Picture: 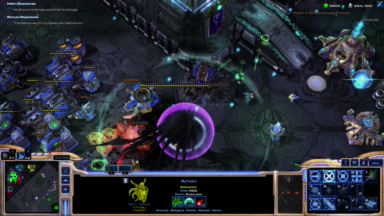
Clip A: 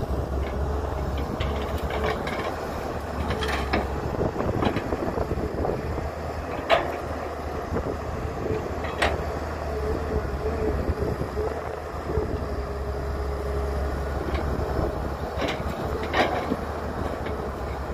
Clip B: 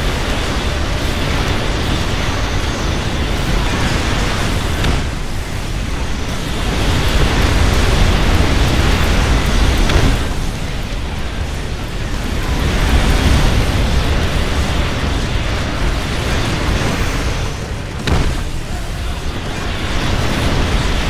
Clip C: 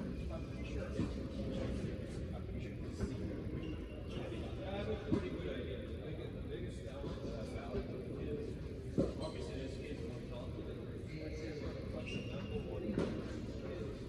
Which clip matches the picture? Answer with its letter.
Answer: B